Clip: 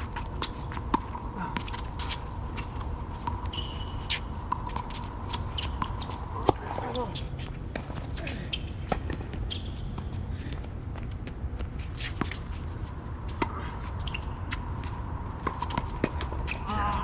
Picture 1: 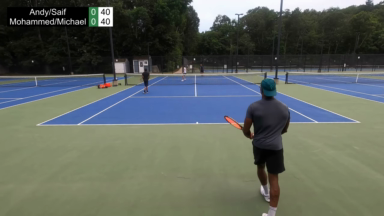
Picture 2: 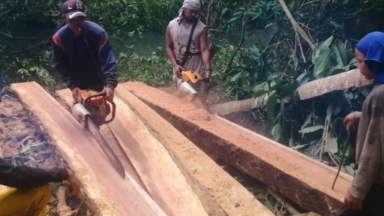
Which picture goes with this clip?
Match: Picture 1